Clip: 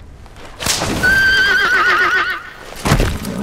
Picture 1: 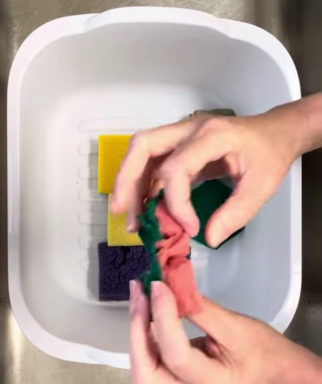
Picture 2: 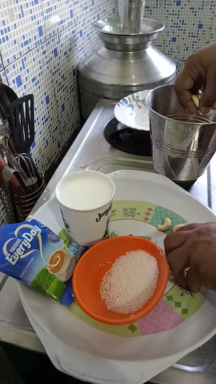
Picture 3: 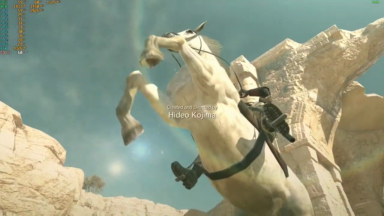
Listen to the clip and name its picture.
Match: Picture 3